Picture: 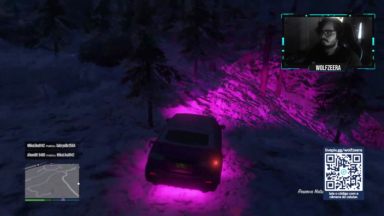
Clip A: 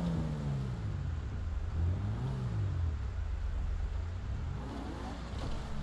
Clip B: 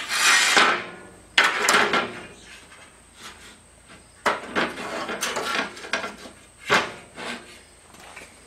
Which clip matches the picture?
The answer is A